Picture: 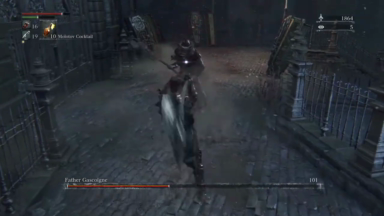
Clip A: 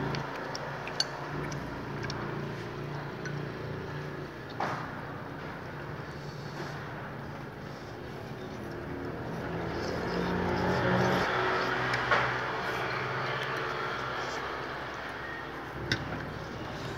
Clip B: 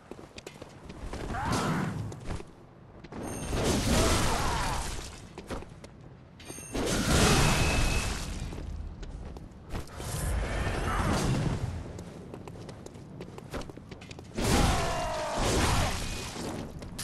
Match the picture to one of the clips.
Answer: B